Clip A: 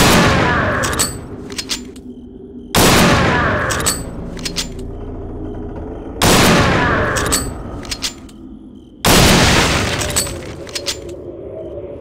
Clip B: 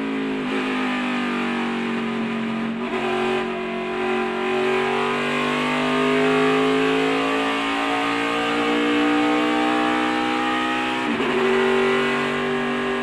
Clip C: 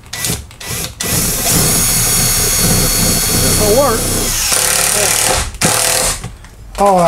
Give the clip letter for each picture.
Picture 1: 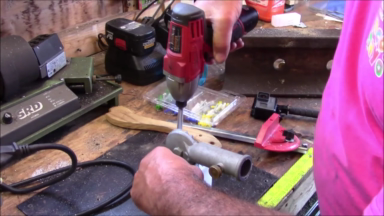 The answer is C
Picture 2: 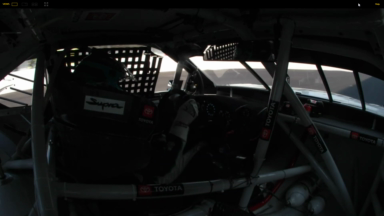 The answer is B